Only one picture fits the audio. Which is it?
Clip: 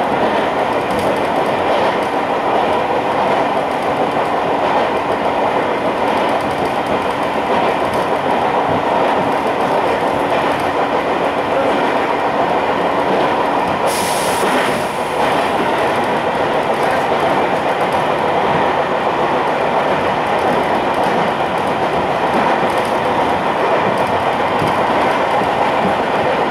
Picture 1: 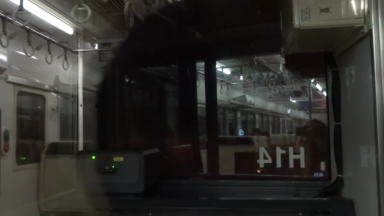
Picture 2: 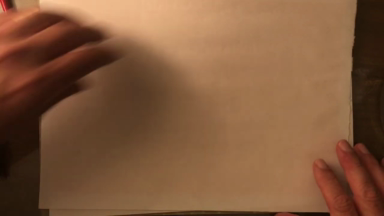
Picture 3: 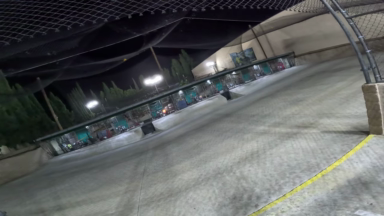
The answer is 1